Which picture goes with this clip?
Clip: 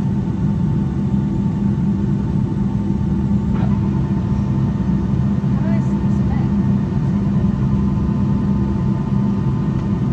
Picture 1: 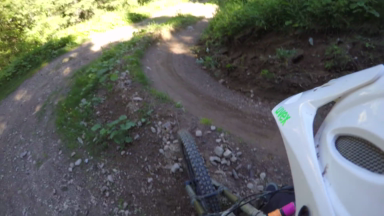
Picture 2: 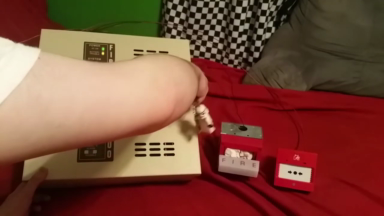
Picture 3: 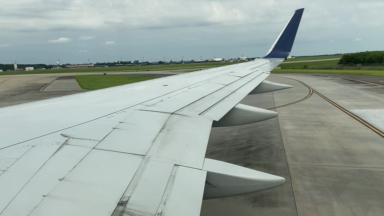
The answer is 3